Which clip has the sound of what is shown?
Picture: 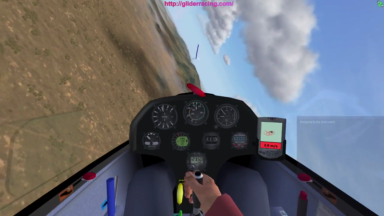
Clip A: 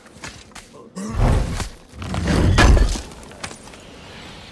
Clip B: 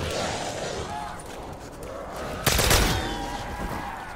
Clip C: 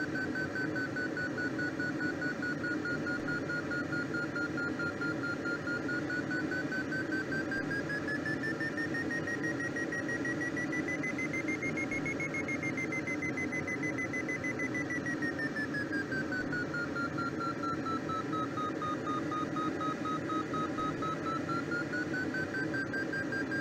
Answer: C